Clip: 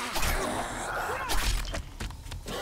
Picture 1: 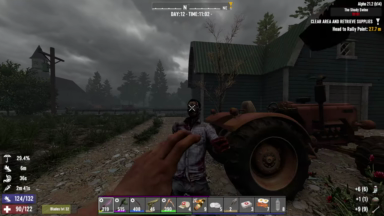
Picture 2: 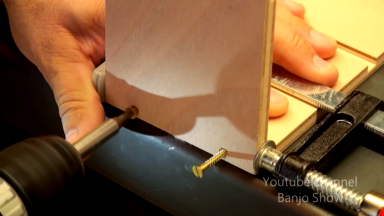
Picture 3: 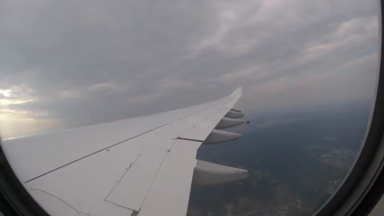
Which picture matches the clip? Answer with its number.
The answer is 1